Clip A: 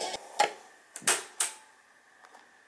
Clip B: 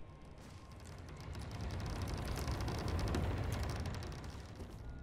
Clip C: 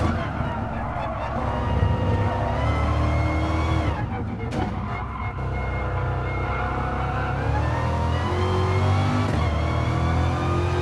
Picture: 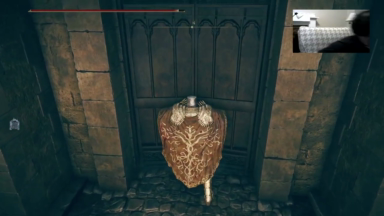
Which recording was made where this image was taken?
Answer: B